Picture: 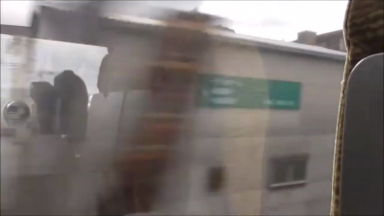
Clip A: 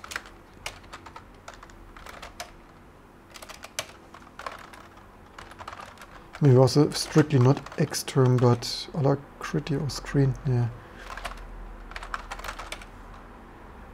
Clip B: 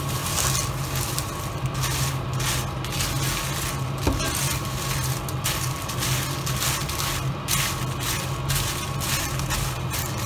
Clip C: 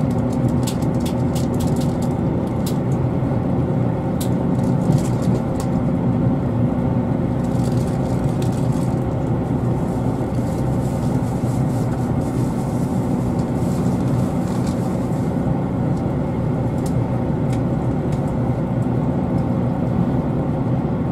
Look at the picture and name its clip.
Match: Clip C